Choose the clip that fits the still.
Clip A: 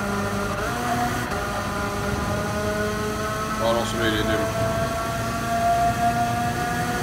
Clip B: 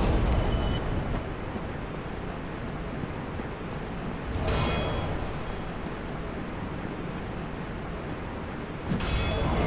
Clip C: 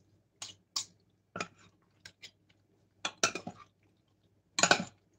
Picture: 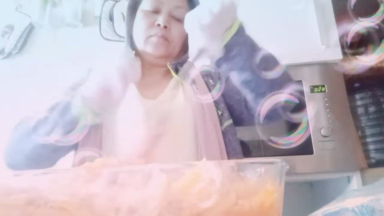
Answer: C